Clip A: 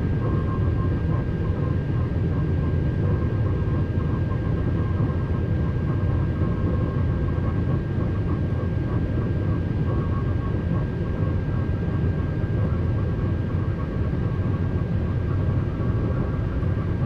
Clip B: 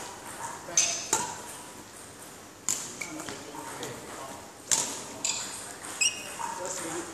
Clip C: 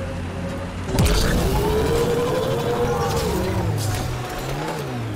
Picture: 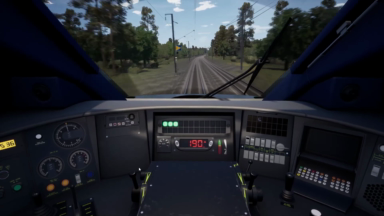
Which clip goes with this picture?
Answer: A